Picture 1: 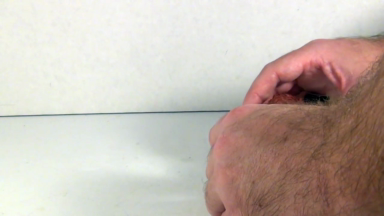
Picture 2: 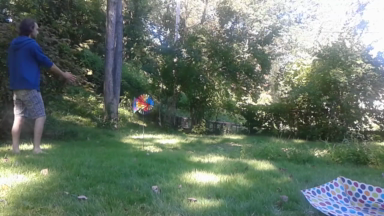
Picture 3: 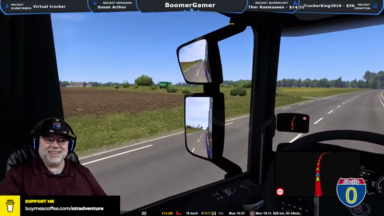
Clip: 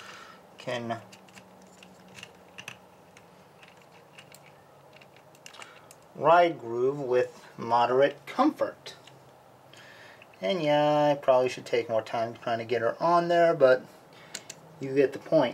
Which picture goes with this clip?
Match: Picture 1